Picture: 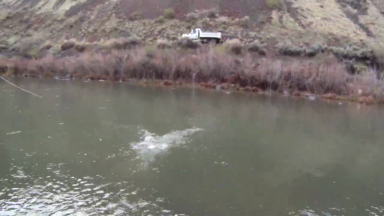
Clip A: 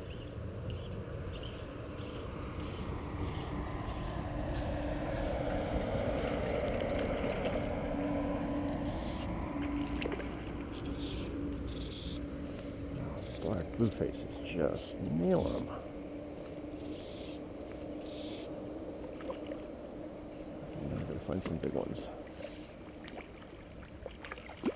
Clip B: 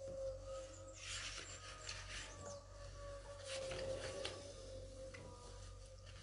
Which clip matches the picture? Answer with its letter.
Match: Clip A